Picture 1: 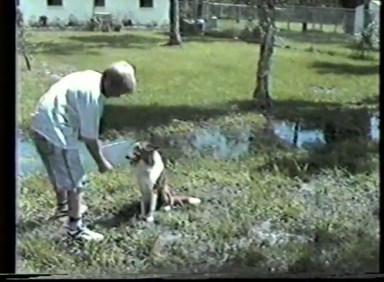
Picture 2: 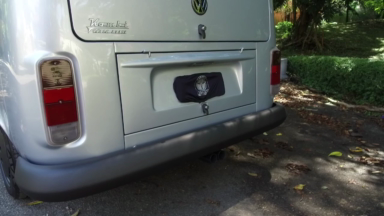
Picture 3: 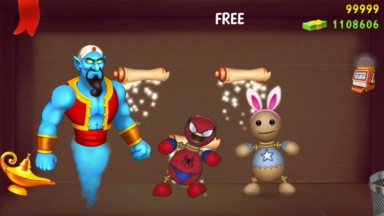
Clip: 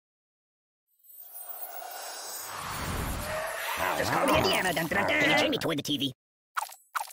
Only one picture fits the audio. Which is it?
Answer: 3